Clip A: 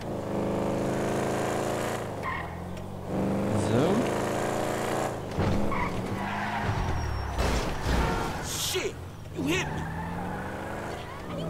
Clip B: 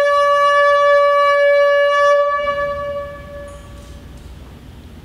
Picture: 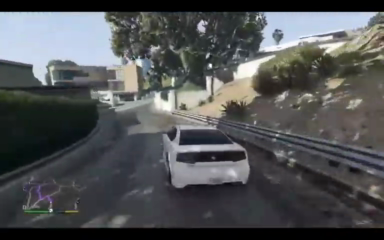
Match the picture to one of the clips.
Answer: A